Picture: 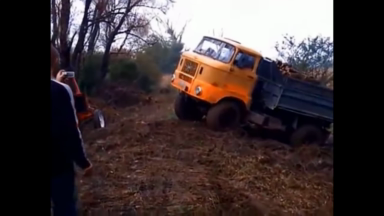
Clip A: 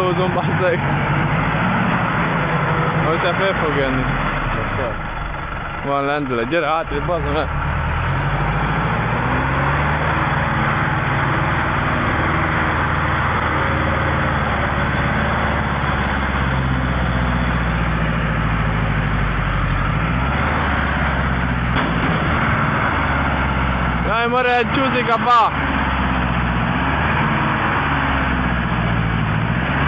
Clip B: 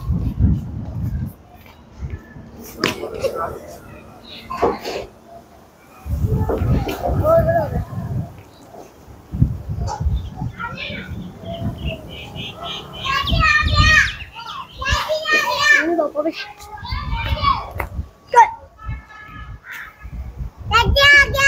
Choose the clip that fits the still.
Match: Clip A